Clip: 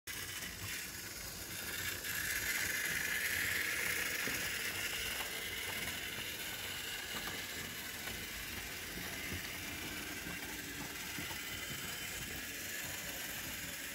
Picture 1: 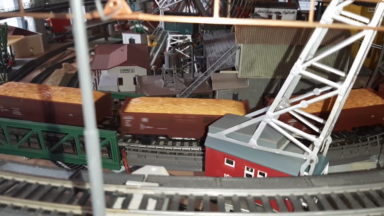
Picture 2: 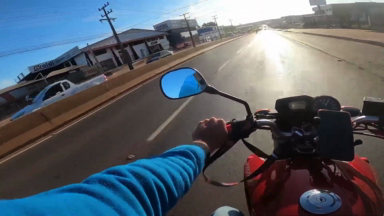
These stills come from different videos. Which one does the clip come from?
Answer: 1